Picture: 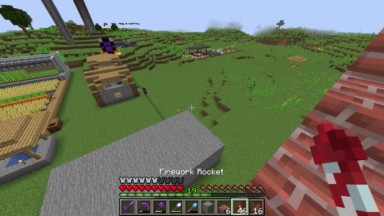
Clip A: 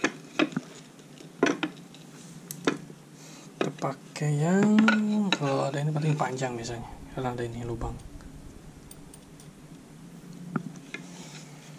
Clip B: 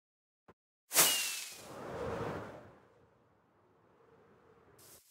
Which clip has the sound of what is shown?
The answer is B